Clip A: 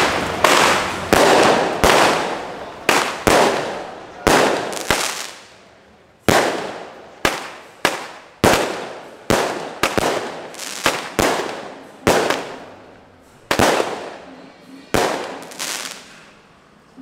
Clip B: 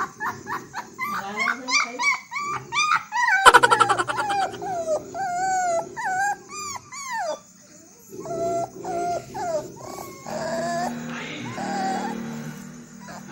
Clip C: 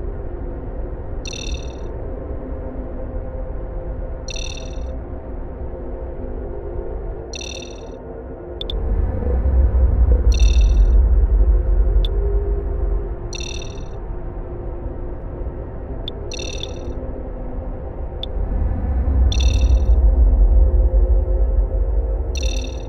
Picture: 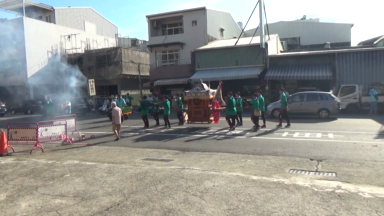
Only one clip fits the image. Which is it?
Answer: A